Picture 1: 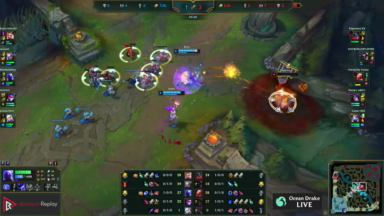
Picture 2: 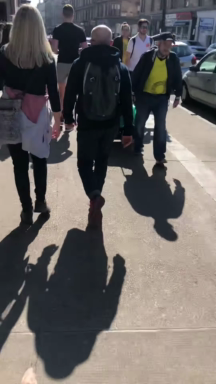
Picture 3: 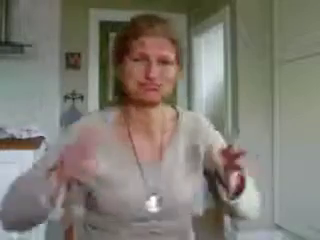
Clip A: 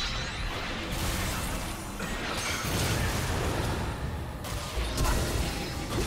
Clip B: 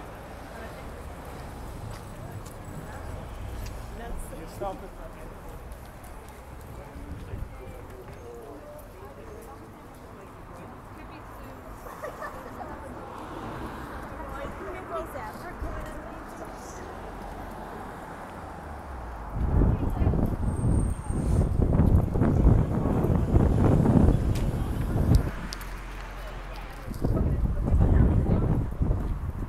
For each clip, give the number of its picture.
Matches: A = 1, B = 2